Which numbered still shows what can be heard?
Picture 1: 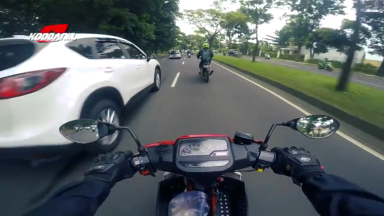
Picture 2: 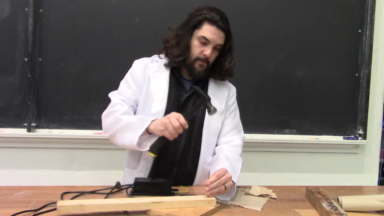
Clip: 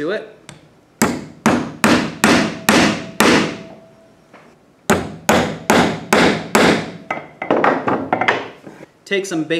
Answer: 2